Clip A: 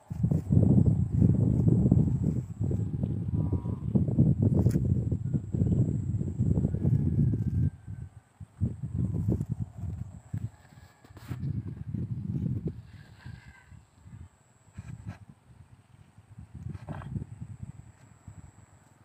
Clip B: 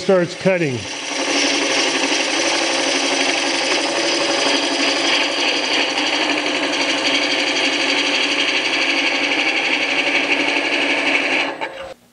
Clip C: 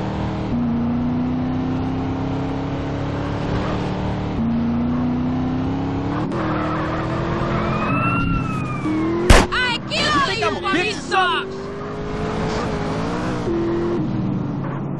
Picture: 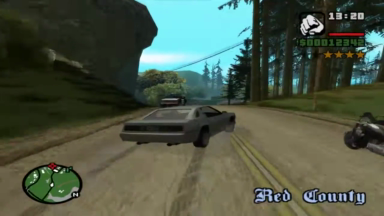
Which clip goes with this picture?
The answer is C